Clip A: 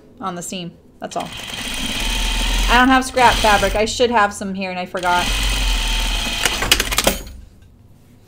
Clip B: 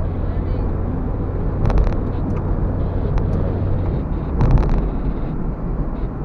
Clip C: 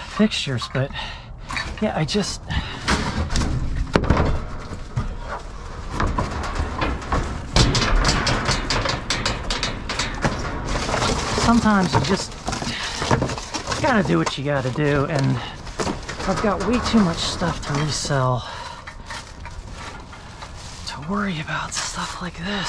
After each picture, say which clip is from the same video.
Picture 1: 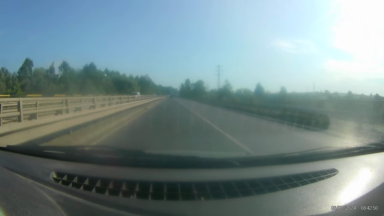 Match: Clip B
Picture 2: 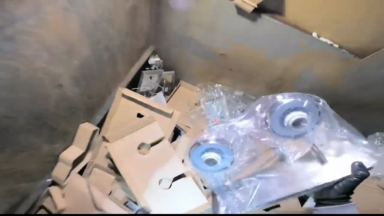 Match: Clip C